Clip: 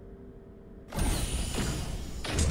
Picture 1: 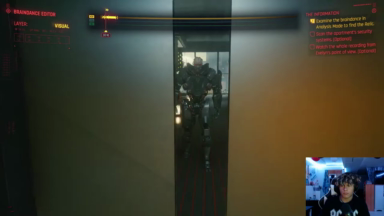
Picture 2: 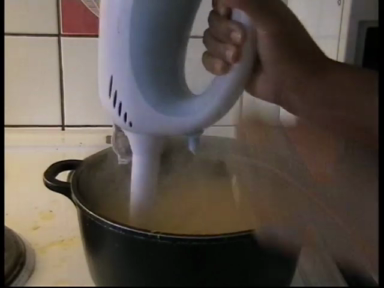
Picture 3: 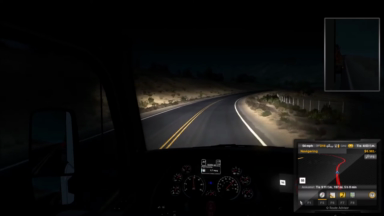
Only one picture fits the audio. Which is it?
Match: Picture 1